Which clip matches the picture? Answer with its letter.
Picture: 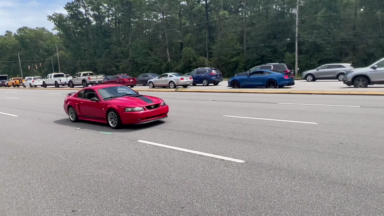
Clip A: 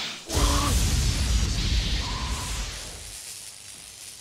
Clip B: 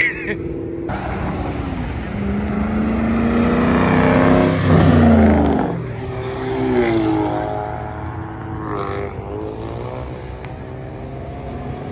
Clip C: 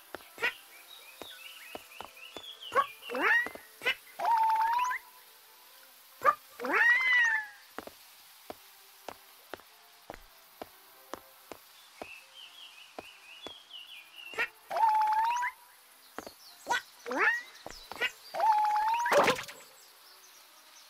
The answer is B